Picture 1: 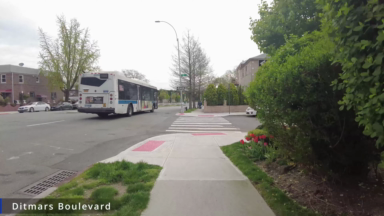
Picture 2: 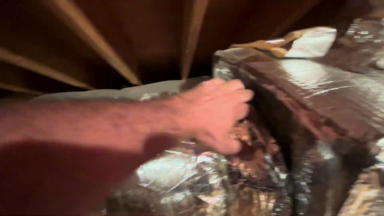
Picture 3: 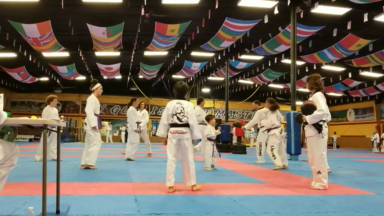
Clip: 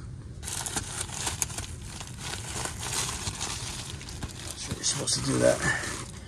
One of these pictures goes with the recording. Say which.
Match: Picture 2